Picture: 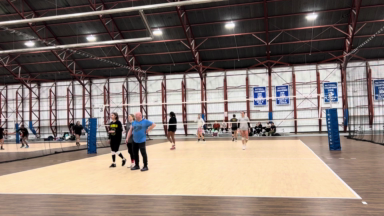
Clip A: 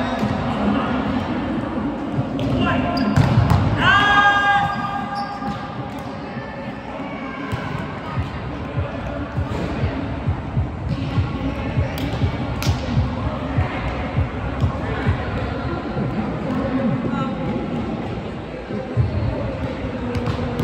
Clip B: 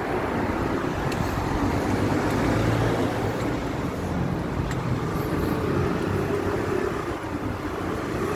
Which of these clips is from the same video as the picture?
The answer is A